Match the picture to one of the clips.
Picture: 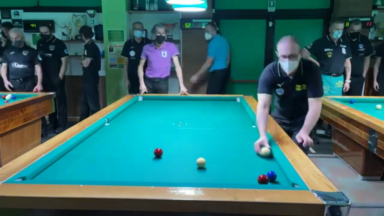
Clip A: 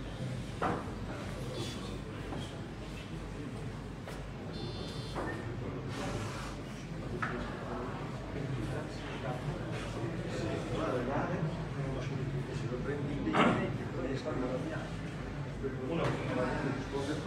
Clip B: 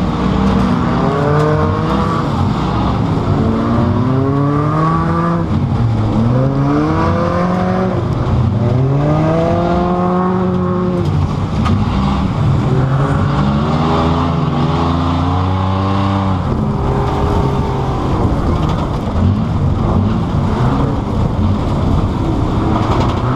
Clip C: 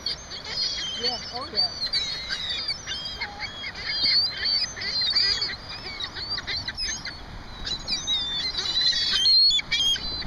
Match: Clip A